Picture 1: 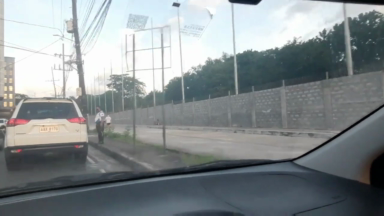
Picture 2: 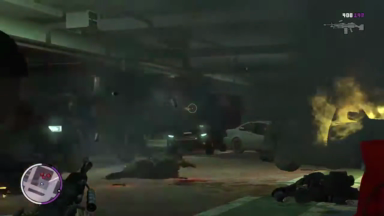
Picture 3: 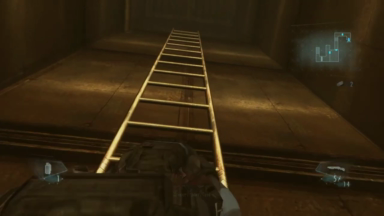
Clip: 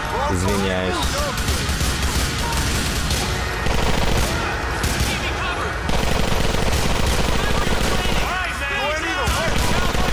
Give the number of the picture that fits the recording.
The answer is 2